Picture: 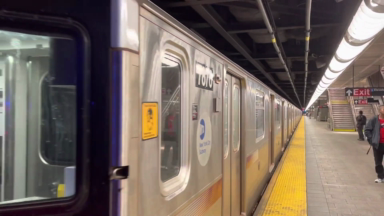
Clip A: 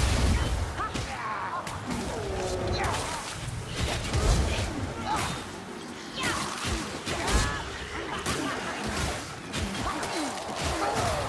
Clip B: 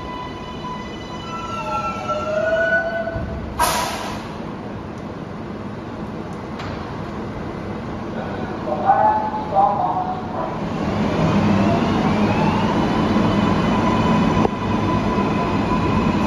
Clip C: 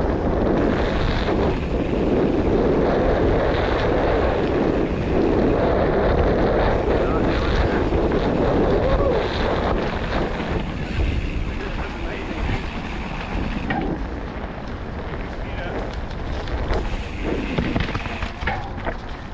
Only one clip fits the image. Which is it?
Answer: B